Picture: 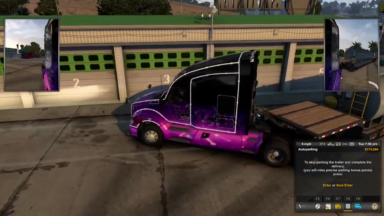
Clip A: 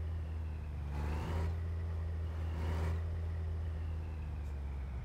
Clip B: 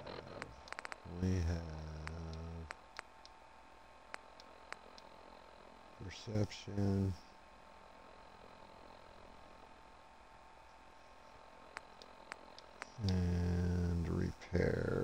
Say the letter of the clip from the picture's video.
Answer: A